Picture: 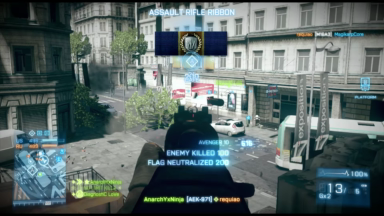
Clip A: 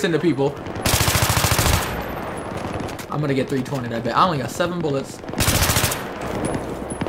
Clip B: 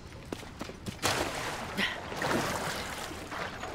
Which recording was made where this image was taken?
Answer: A